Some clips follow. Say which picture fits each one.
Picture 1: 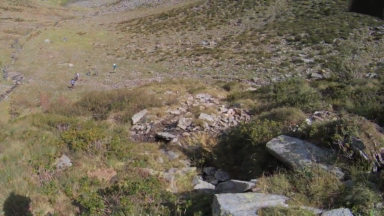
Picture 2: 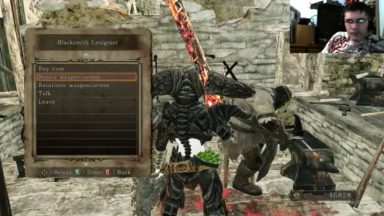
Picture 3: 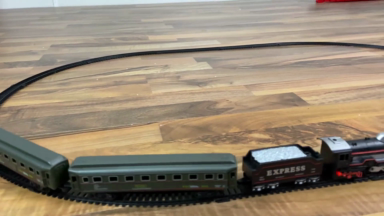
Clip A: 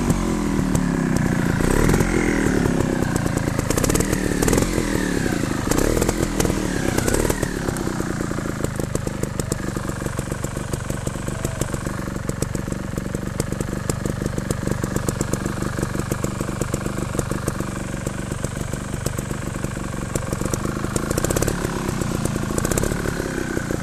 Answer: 1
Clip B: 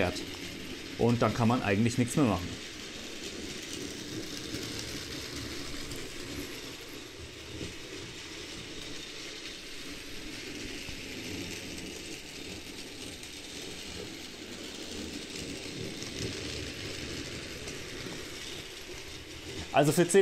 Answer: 3